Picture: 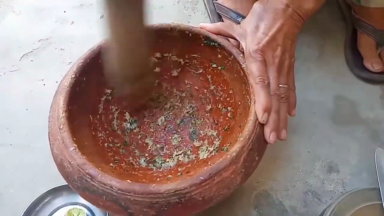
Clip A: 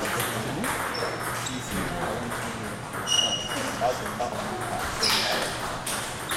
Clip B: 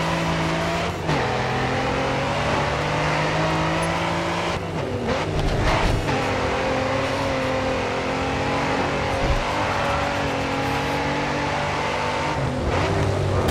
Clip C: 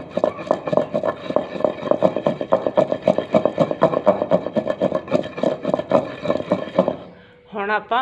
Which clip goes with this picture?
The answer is C